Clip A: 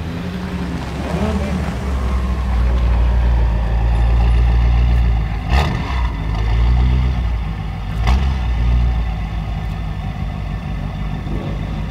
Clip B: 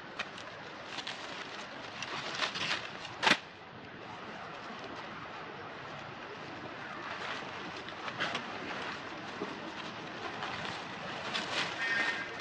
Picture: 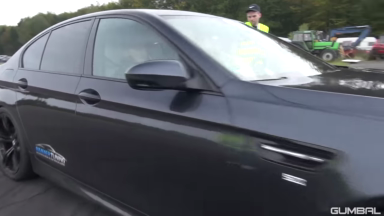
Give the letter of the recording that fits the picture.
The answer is A